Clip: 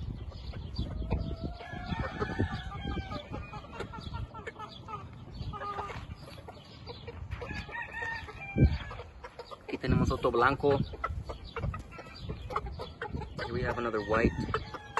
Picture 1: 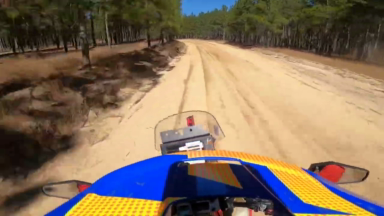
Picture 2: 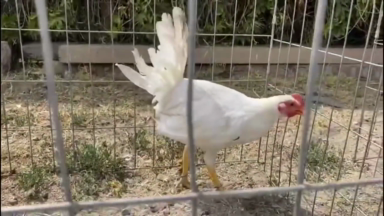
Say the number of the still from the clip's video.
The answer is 2